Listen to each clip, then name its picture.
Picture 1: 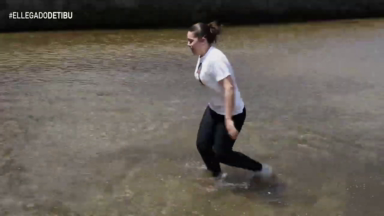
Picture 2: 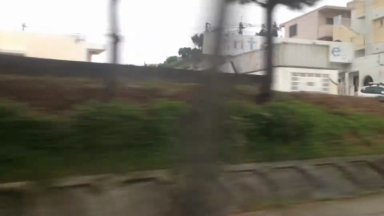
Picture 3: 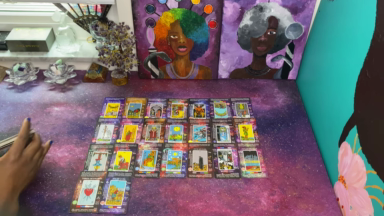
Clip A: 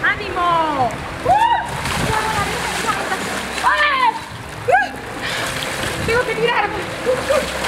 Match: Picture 1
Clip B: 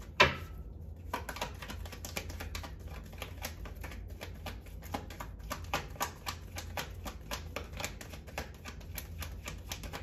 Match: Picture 3